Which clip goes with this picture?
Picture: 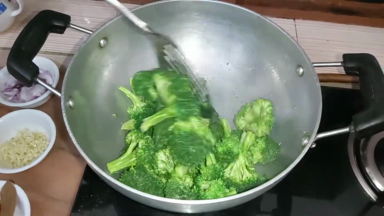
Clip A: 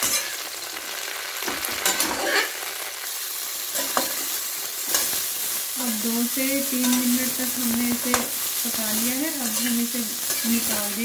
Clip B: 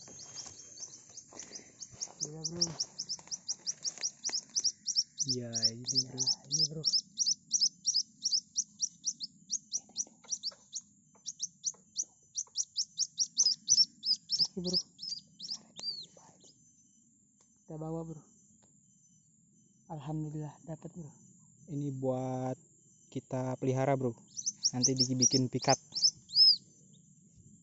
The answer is A